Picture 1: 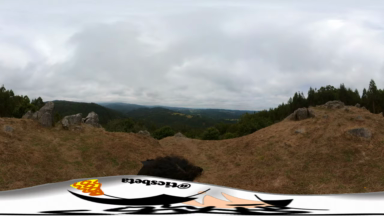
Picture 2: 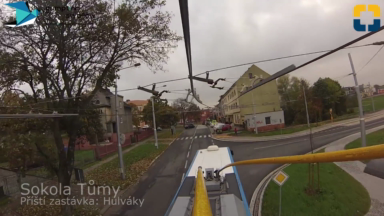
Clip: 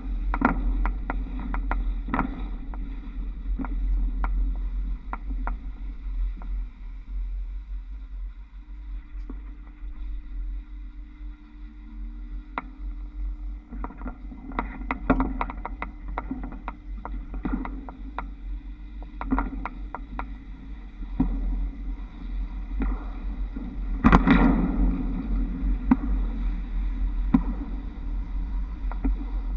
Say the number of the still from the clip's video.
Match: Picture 2